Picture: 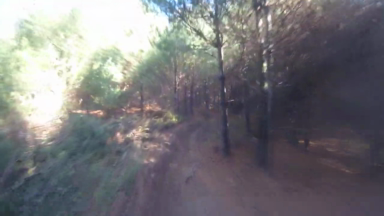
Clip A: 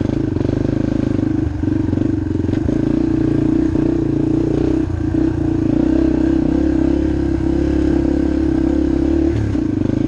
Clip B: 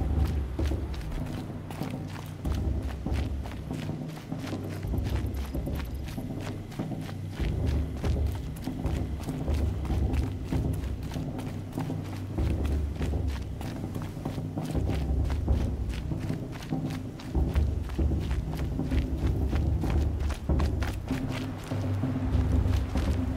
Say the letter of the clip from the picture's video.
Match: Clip A